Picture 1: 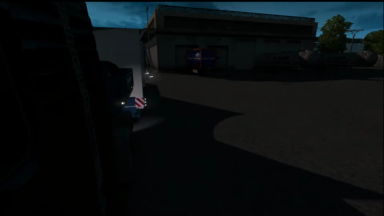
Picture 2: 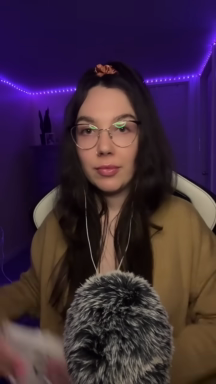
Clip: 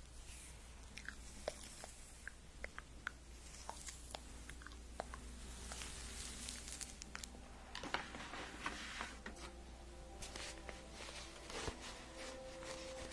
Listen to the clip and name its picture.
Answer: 2